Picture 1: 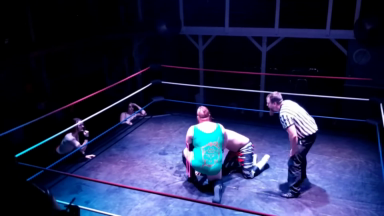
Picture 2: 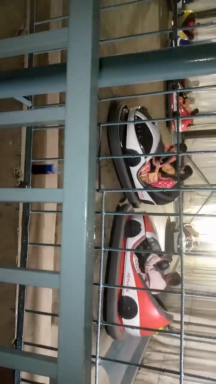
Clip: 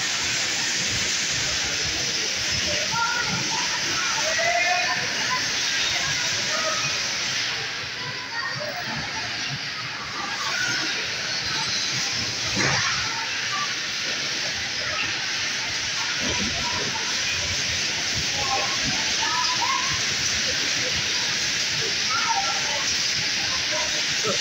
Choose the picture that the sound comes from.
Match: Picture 2